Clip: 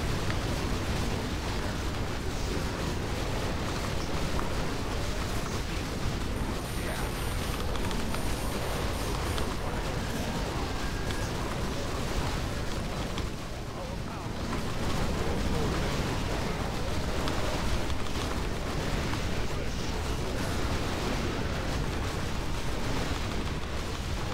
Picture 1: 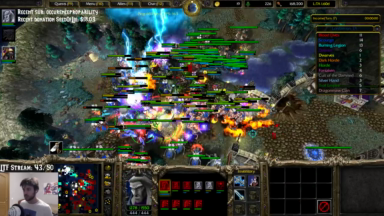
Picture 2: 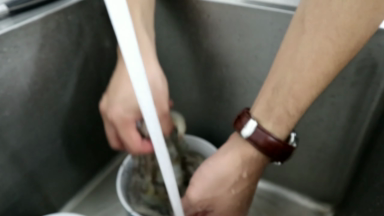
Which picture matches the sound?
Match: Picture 1